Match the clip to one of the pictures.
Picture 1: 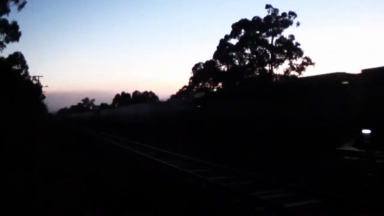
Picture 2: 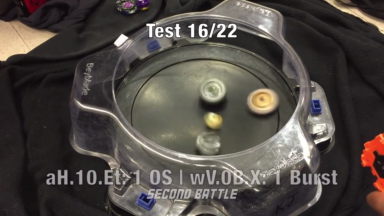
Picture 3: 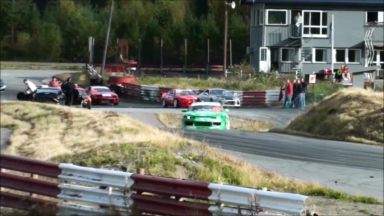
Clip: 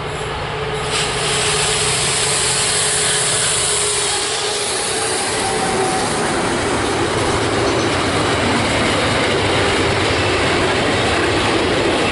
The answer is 1